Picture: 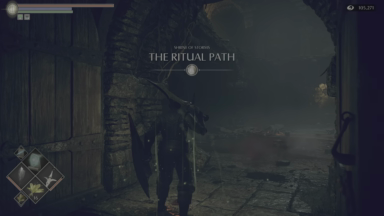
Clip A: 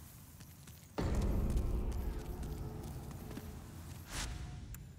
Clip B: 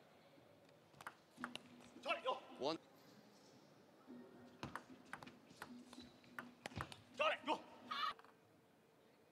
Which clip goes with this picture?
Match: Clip A